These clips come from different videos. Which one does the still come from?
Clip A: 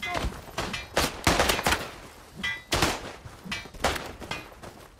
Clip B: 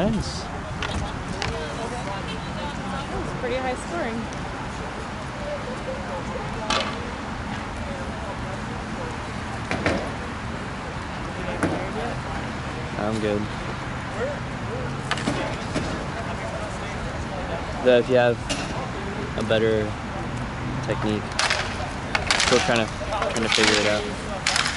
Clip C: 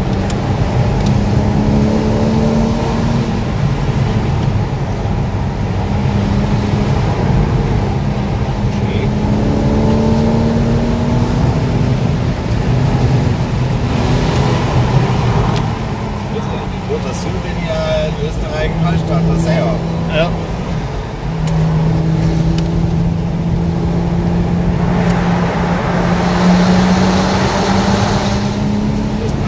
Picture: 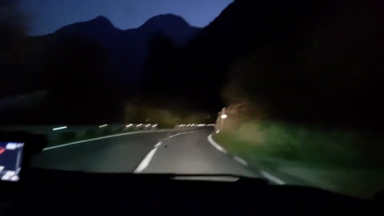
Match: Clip C